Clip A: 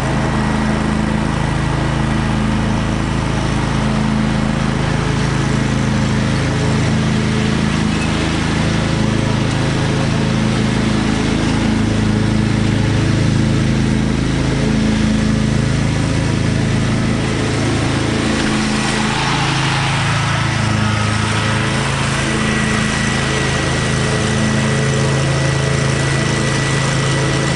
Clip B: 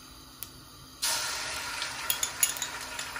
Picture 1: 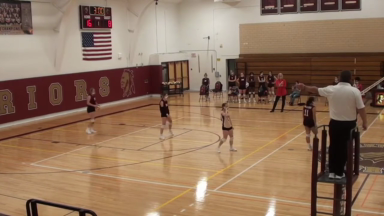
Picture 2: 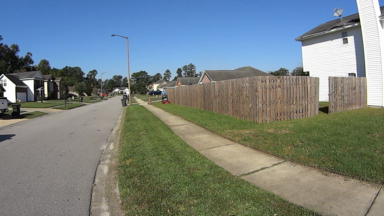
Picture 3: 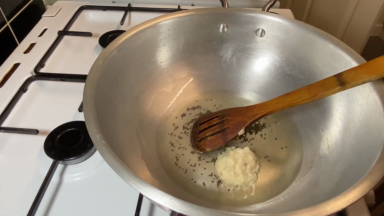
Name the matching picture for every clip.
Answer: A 2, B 3